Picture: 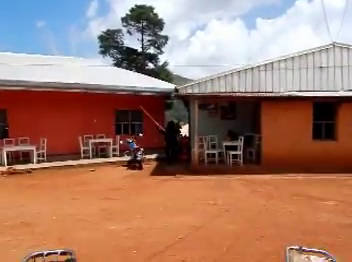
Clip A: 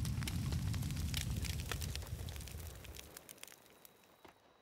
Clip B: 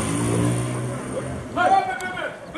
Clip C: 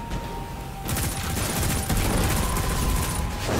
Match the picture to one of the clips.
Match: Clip B